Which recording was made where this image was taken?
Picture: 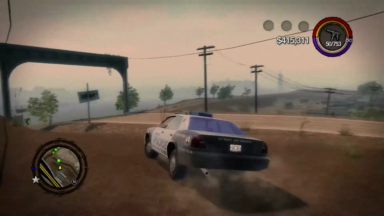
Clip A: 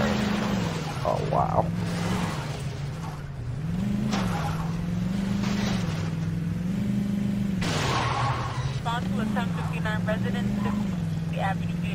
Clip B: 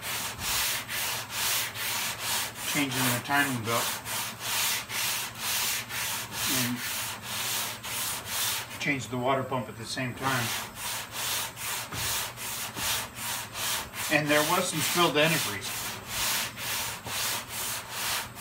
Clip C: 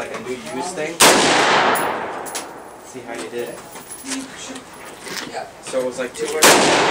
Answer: A